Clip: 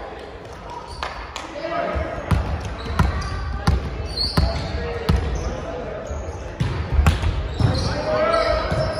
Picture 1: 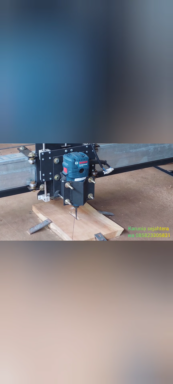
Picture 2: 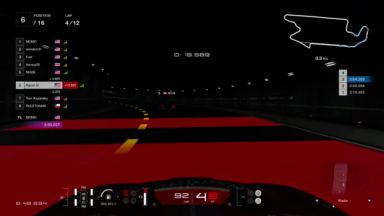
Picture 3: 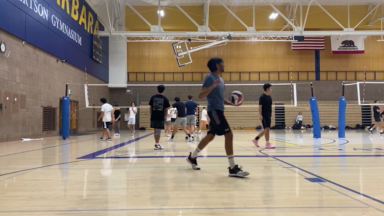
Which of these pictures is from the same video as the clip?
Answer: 3